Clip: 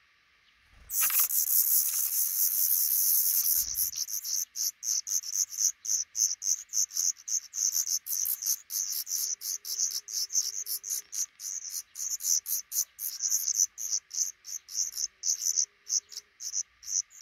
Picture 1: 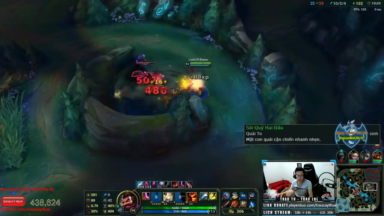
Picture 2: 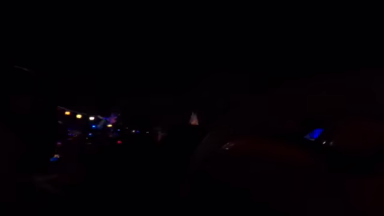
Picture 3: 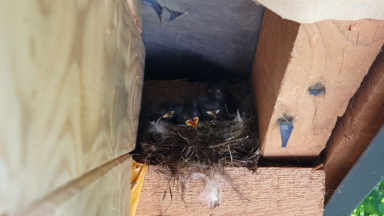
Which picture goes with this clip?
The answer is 3